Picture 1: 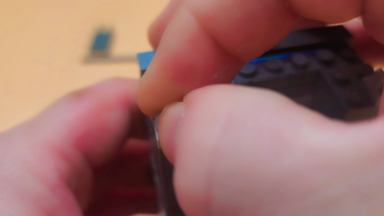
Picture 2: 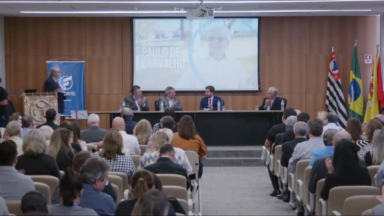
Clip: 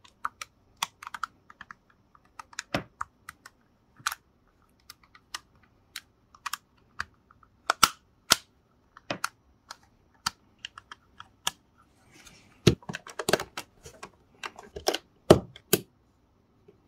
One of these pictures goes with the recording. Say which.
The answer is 1